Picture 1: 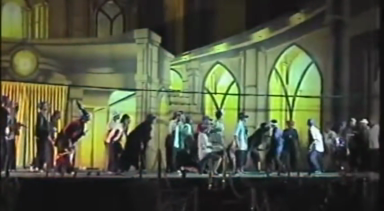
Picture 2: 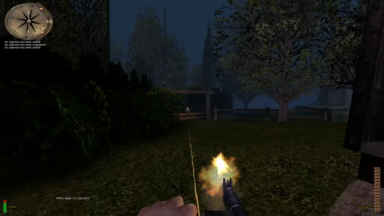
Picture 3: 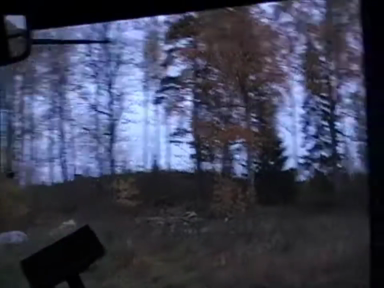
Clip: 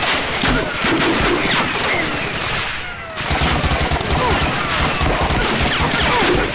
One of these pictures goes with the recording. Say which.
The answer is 2